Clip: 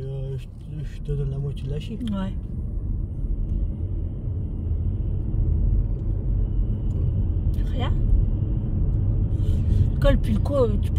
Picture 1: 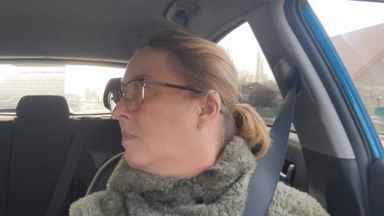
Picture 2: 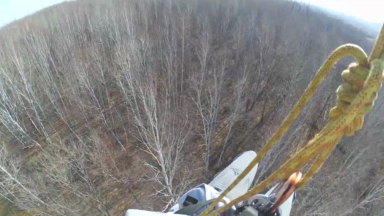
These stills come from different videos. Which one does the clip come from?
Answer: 1